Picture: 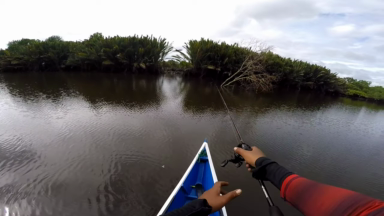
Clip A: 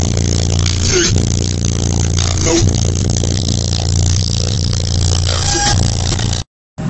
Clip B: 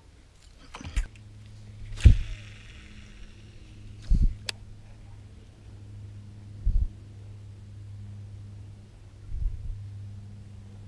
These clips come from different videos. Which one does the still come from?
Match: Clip B